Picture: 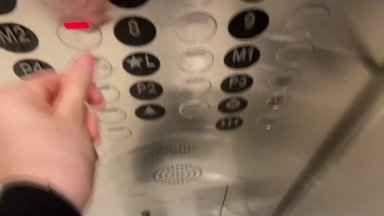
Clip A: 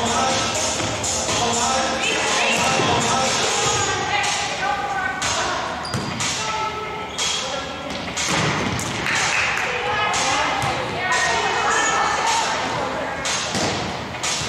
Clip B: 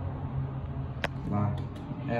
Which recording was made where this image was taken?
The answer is B